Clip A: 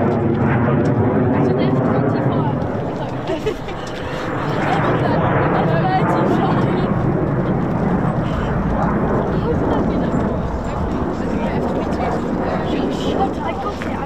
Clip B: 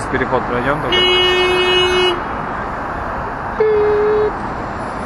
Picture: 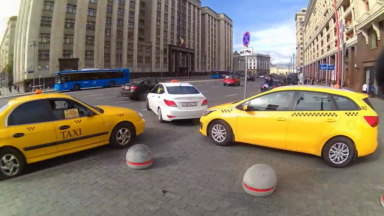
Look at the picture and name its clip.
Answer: B